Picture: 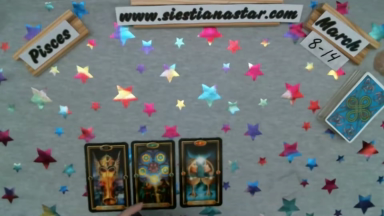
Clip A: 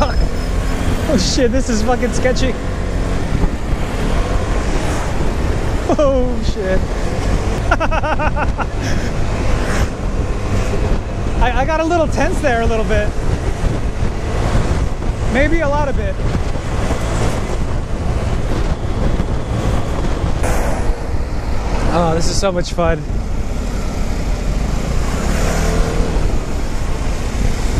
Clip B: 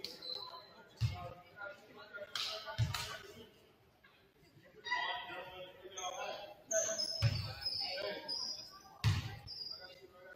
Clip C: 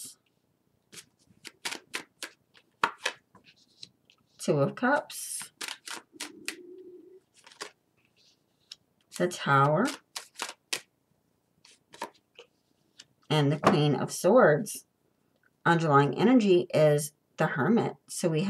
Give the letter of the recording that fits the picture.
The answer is C